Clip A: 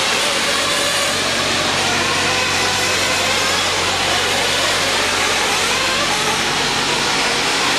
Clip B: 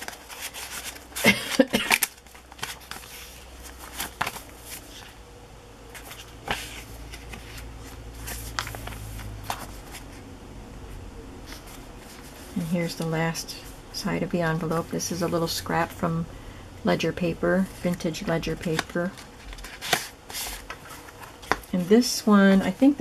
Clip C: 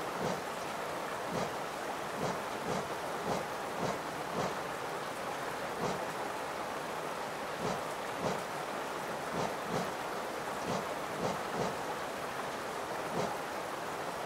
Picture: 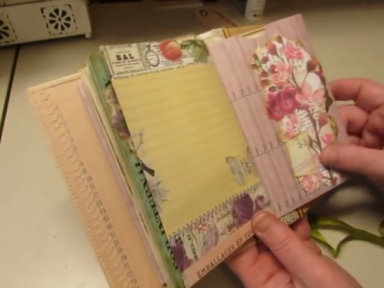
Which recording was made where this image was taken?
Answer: B